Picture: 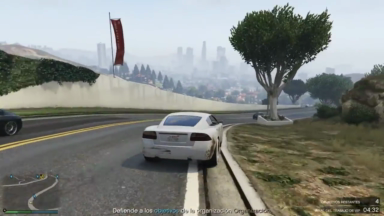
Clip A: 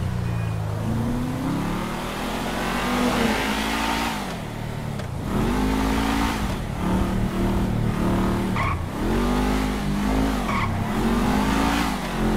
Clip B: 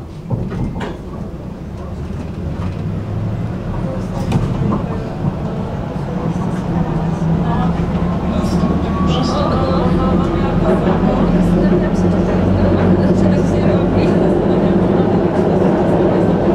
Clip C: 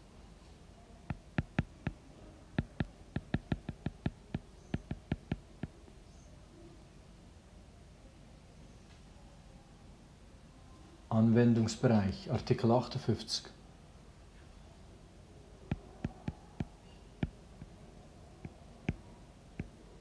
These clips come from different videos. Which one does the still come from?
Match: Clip A